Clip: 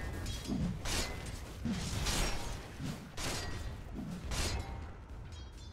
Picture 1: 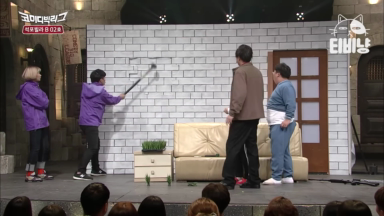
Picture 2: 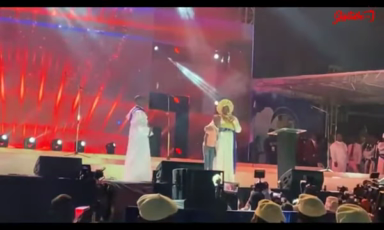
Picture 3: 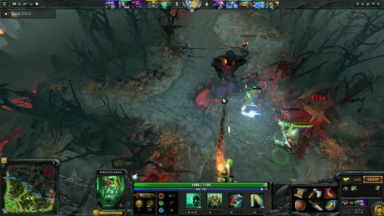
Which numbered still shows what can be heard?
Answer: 3